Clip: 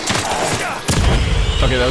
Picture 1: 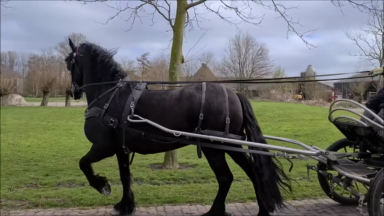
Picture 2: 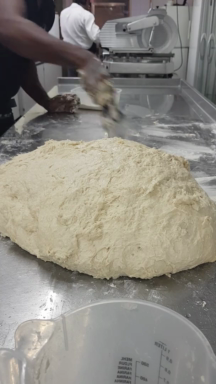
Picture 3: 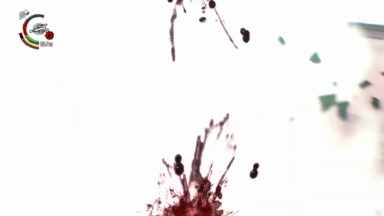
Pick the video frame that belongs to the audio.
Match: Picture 3